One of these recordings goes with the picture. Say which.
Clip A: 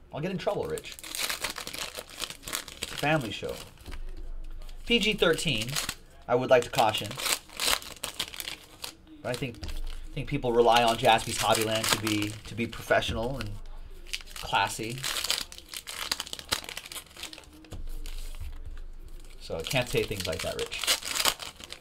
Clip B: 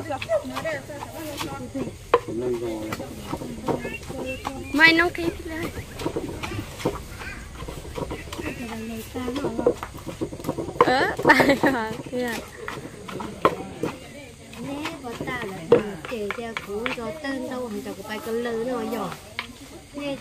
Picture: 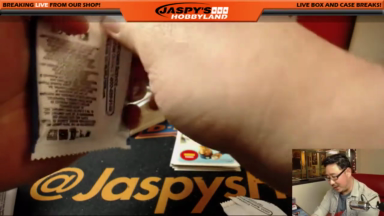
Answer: A